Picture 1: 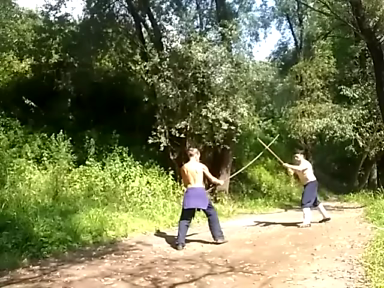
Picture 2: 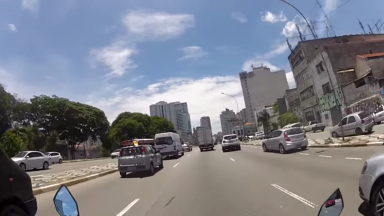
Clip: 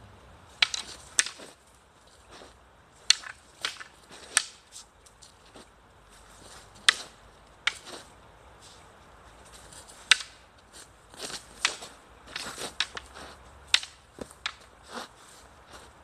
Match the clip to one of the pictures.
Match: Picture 1